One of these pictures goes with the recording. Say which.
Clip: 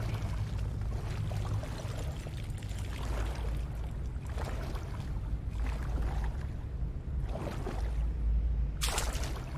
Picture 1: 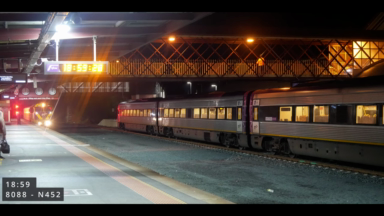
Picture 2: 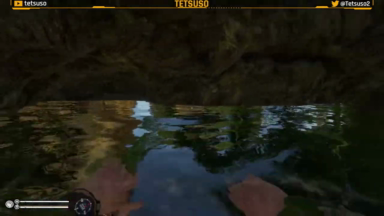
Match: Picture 2